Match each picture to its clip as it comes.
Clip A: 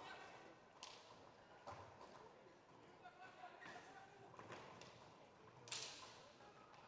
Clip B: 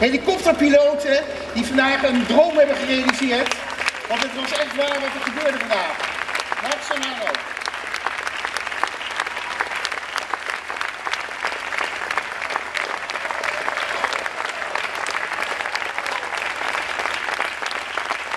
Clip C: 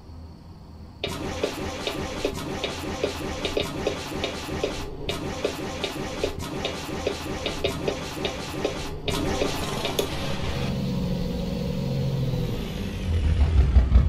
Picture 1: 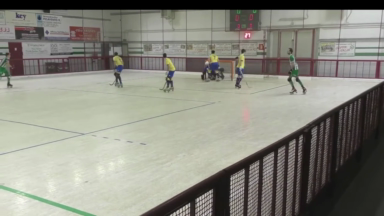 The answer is A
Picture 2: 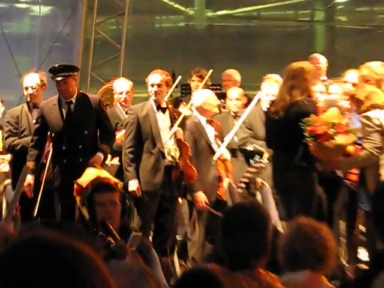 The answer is B